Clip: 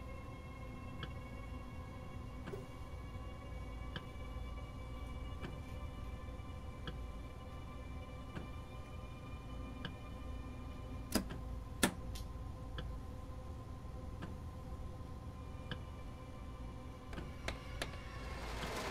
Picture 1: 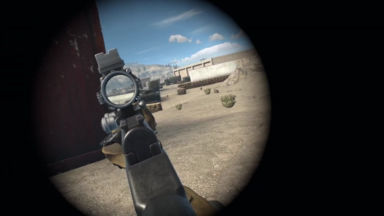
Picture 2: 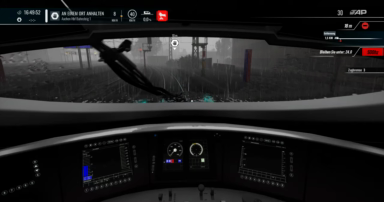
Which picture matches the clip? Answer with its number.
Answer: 2